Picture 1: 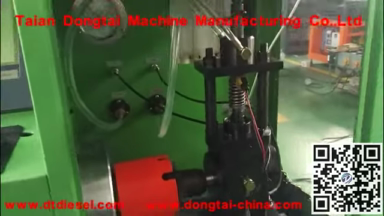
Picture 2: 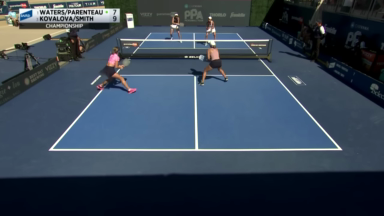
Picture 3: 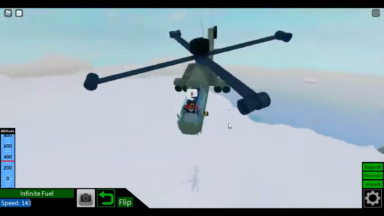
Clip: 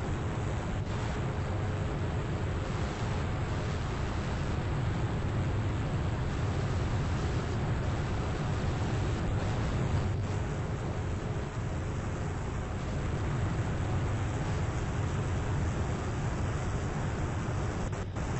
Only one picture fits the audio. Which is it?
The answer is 3